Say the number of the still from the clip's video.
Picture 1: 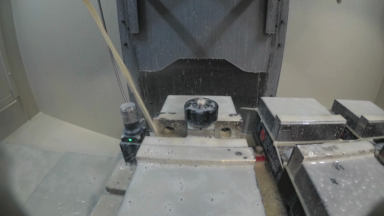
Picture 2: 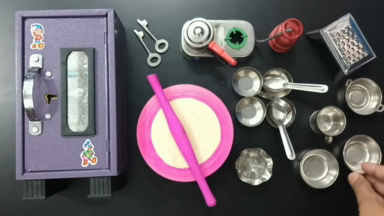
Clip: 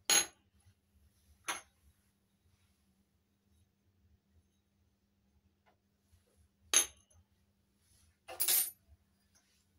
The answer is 2